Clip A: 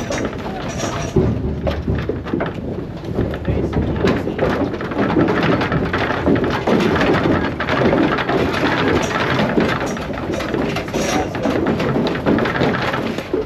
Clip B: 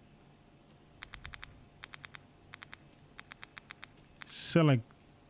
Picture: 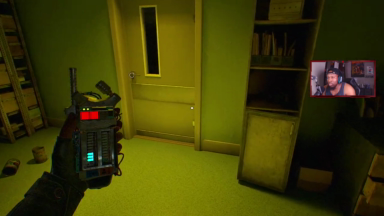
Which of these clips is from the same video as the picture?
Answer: B